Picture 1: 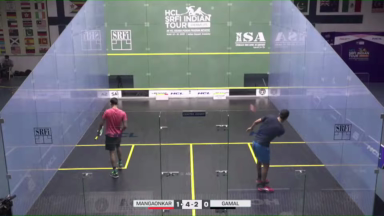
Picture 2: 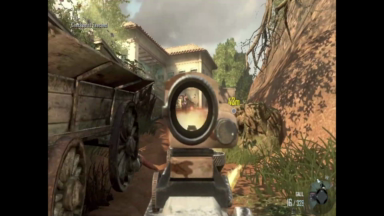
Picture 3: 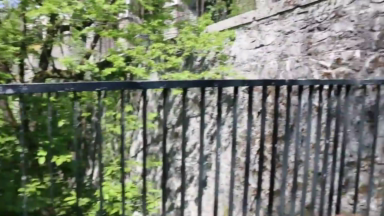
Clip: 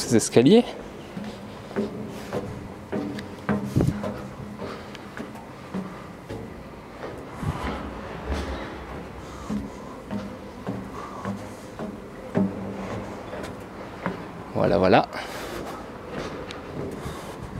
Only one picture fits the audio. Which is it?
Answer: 3